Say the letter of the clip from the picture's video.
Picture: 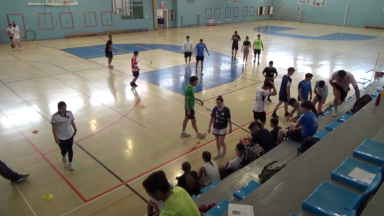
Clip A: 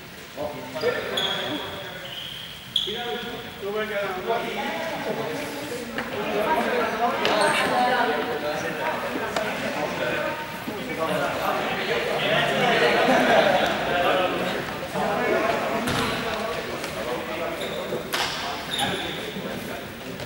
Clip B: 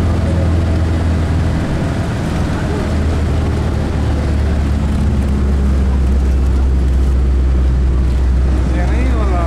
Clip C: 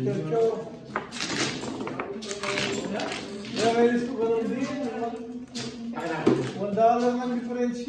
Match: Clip A